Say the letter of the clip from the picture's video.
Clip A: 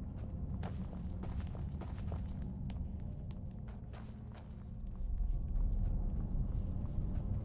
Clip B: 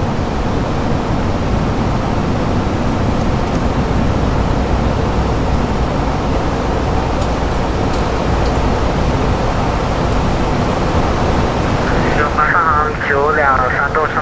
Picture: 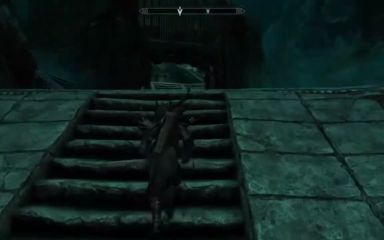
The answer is A